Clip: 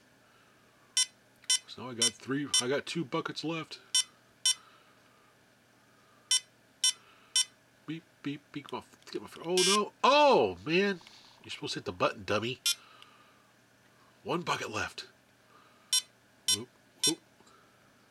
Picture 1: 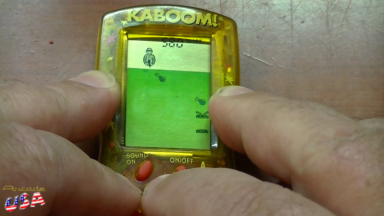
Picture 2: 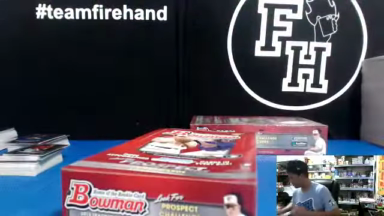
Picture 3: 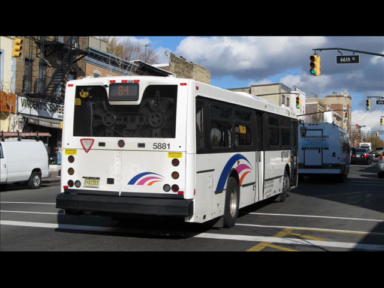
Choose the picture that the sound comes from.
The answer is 1